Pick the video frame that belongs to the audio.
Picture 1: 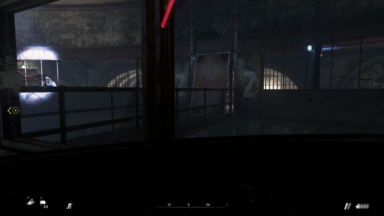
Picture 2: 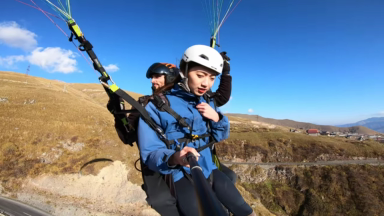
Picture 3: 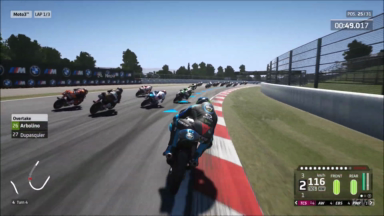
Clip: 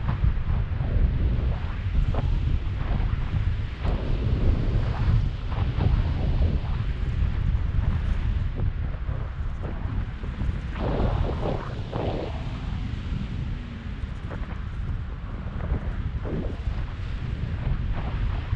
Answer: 2